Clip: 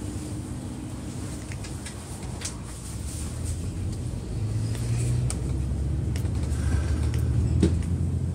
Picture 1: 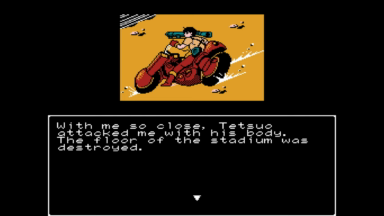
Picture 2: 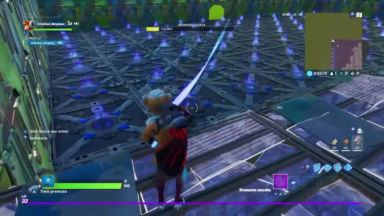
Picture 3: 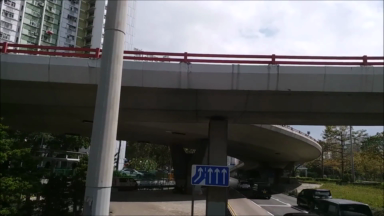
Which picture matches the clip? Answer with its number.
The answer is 3